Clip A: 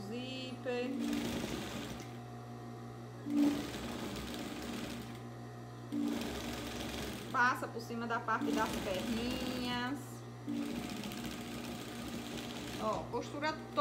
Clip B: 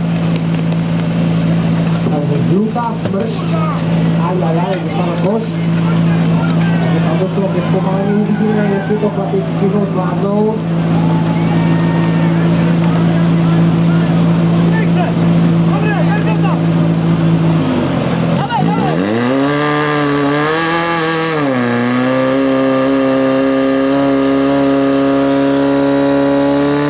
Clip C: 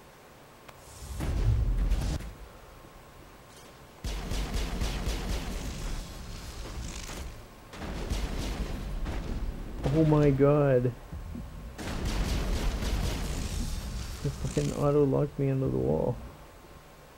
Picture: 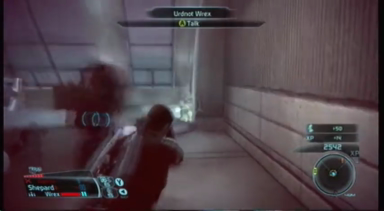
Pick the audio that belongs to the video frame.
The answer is C